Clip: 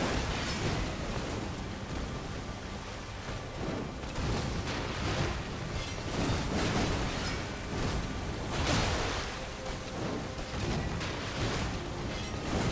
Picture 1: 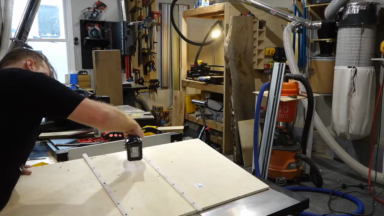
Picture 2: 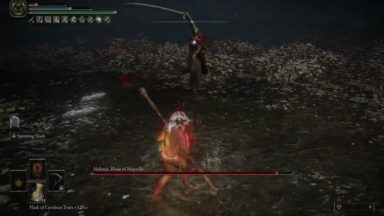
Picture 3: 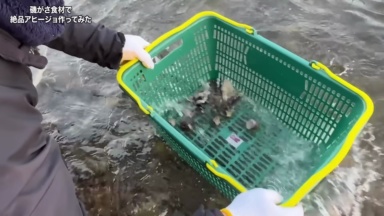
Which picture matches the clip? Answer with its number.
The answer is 2